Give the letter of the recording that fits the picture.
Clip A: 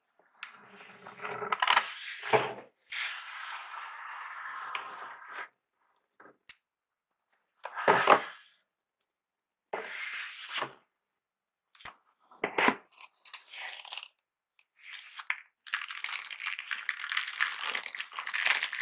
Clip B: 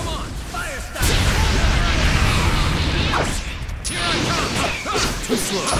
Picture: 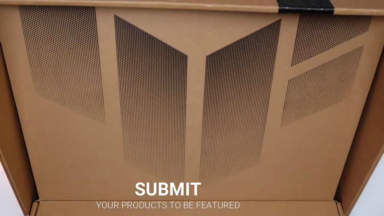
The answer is A